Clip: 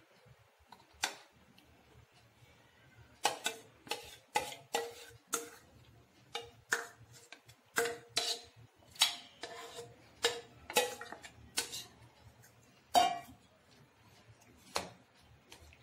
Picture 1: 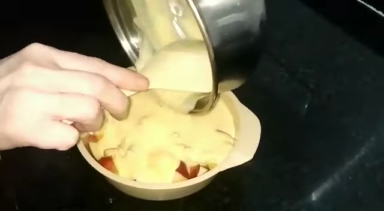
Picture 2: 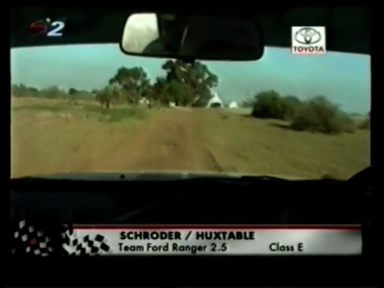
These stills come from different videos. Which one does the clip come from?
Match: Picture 1